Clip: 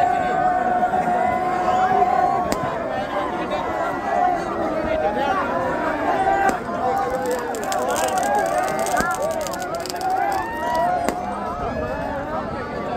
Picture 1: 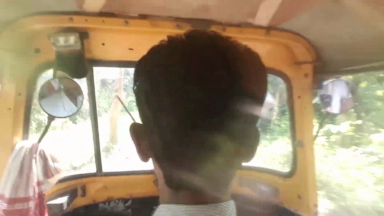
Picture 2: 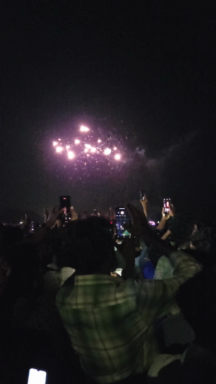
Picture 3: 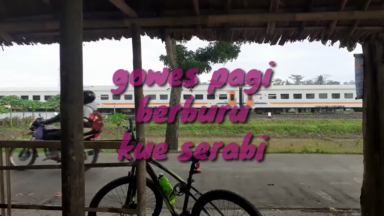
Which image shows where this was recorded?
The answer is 2